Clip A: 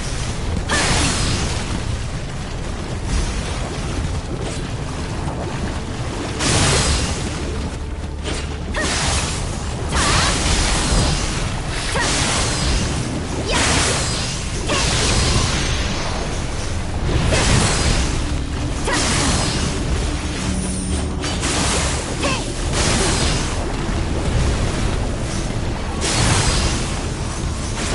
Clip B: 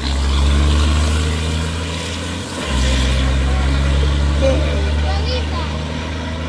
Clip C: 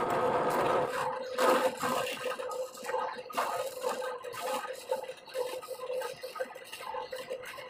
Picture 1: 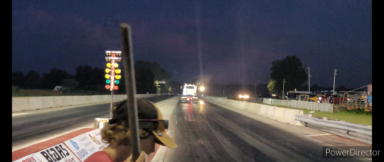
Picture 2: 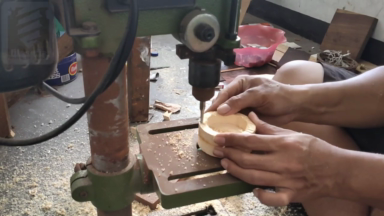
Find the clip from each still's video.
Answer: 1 B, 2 C